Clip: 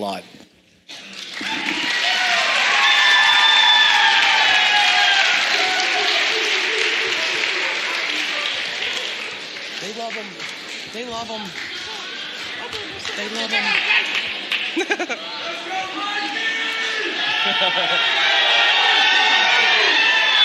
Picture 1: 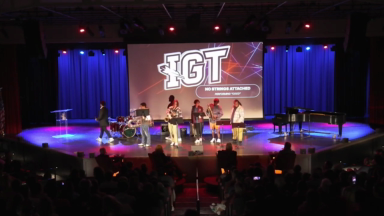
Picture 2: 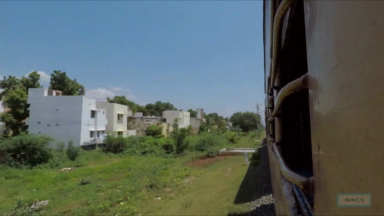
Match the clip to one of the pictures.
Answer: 1